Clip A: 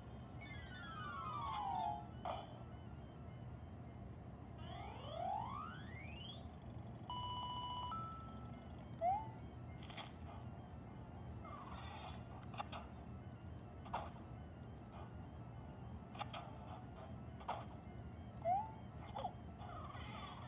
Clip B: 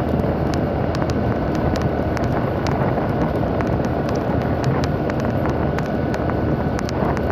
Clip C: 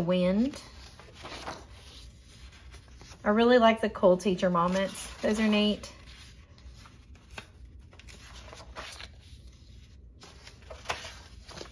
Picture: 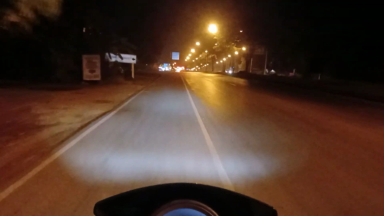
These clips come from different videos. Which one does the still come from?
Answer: B